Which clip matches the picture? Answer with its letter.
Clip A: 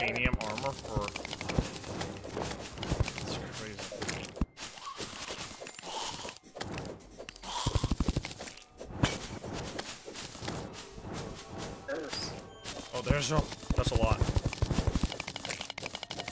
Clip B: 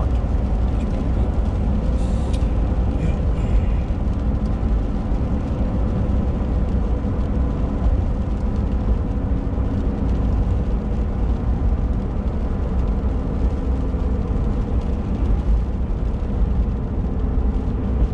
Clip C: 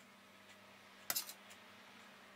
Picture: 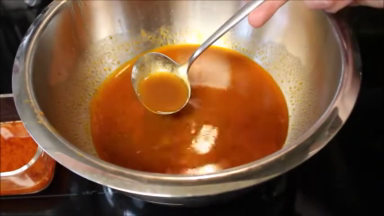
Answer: C